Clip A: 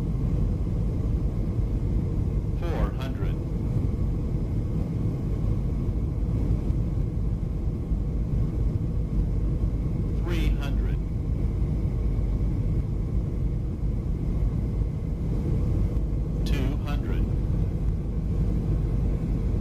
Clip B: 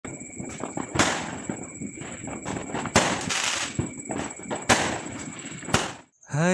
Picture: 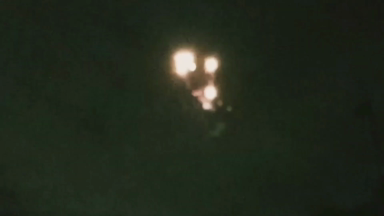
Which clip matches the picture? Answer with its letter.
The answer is B